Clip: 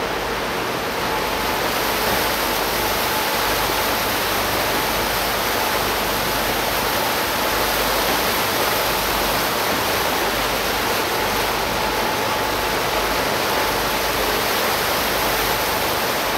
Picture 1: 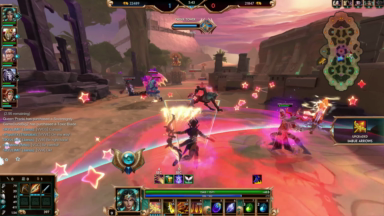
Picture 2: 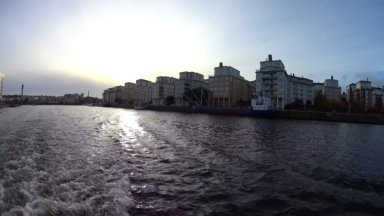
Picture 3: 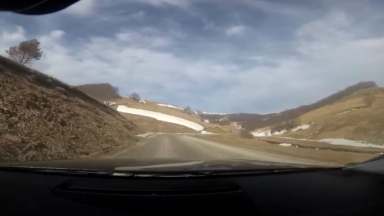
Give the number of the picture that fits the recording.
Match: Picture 2